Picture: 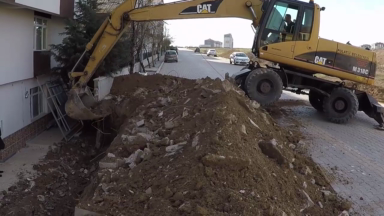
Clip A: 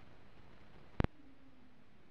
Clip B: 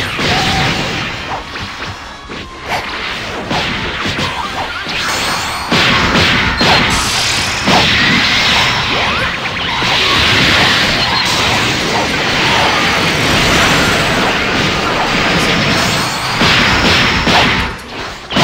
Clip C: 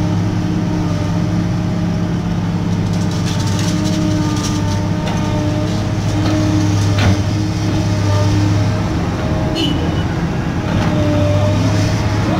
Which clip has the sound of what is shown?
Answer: C